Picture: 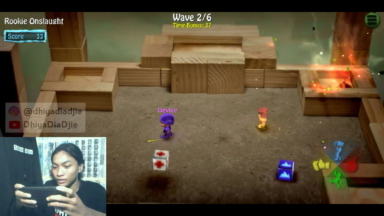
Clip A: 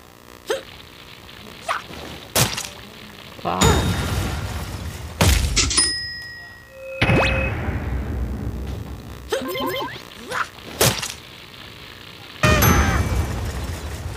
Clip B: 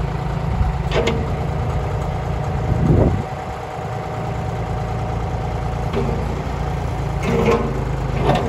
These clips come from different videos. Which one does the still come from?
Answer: A